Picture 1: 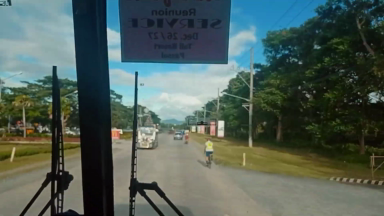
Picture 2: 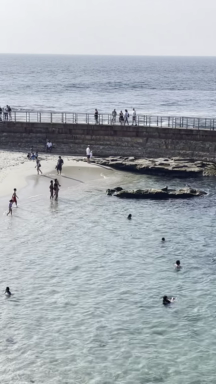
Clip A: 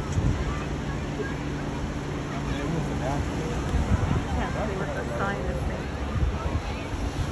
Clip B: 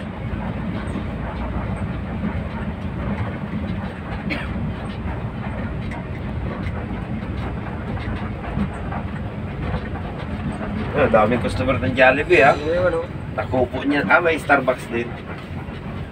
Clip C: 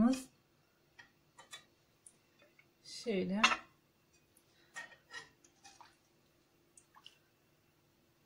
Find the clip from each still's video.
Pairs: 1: B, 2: A